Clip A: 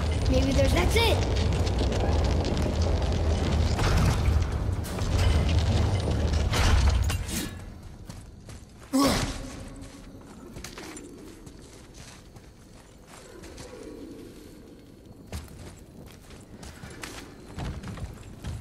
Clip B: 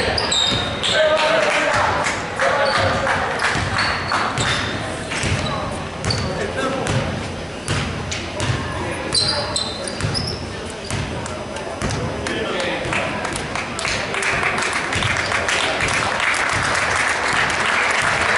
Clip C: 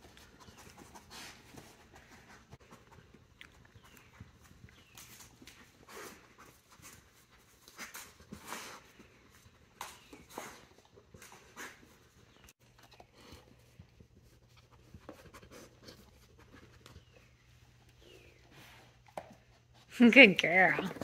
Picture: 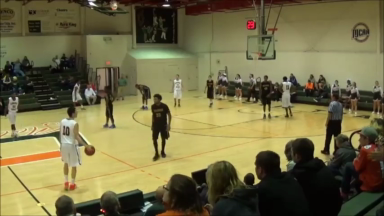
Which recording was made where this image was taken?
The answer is B